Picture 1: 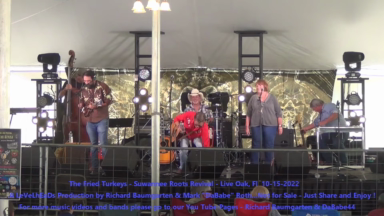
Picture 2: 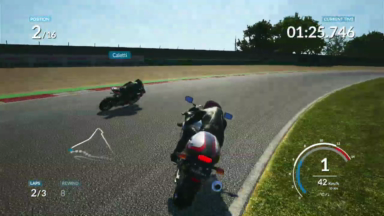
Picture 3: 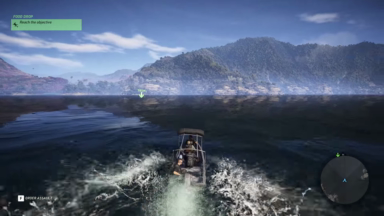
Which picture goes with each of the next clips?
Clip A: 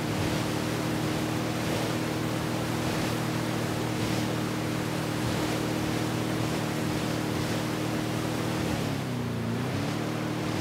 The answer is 3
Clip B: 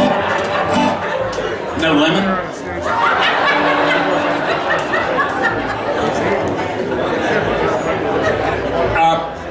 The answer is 1